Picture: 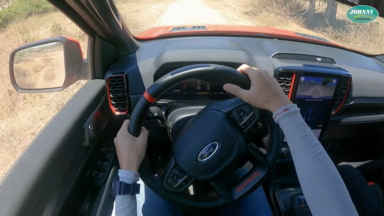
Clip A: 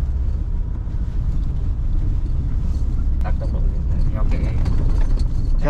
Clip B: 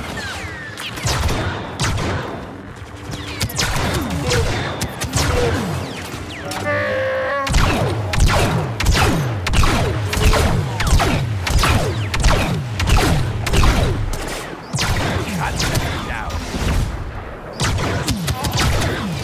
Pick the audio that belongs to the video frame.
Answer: A